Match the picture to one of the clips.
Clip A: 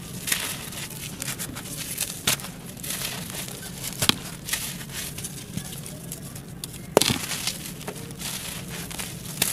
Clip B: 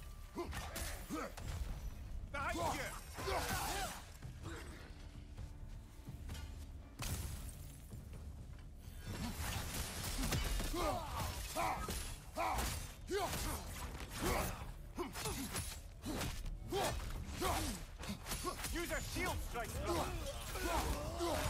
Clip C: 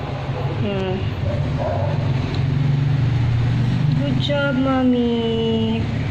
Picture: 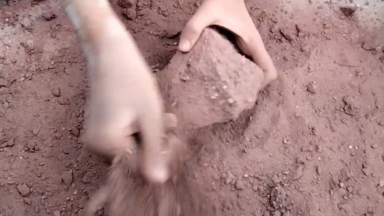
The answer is A